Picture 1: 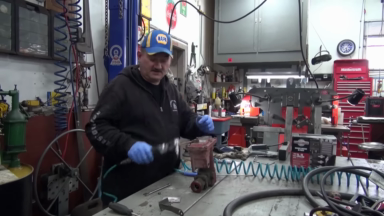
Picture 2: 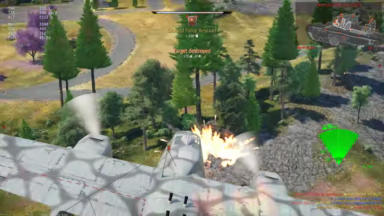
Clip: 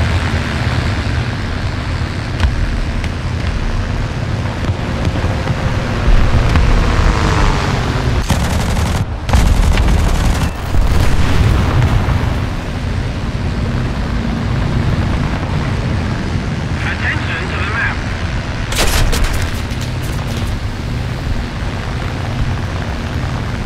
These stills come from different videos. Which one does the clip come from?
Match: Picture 2